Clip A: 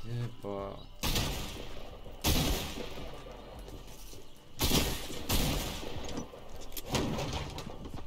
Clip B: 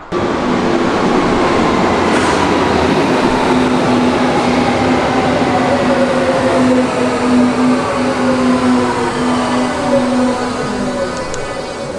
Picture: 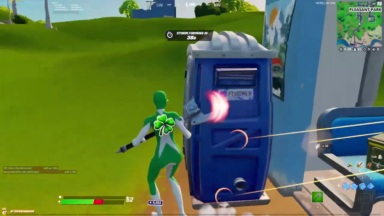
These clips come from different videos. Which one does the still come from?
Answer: A